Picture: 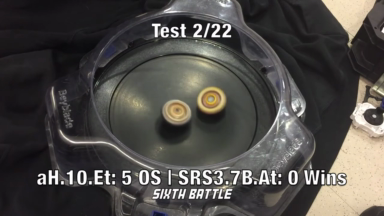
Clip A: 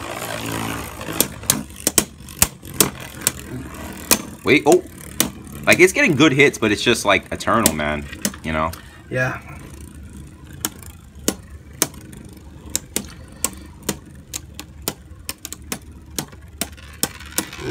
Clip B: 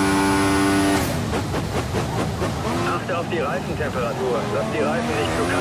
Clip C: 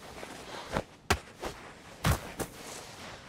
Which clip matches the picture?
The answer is A